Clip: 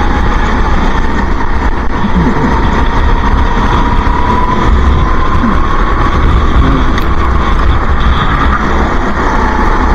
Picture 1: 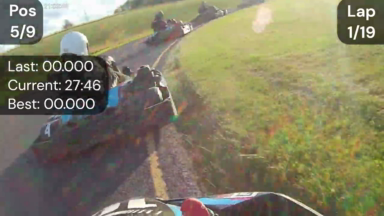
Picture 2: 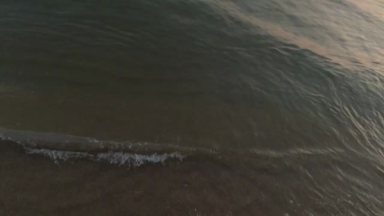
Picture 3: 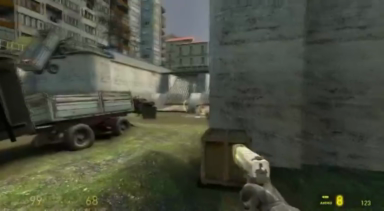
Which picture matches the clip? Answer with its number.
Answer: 1